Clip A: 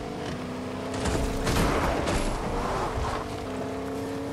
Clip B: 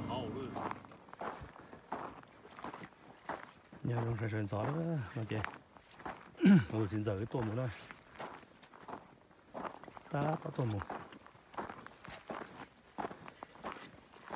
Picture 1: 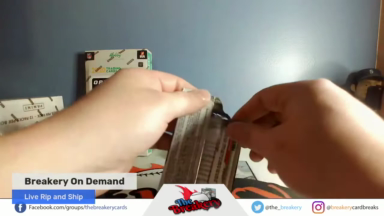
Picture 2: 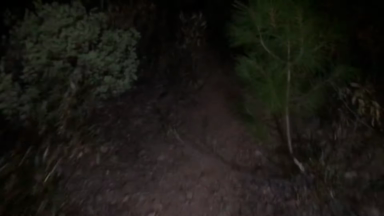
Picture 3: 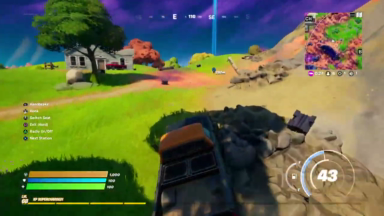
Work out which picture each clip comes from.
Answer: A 3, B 2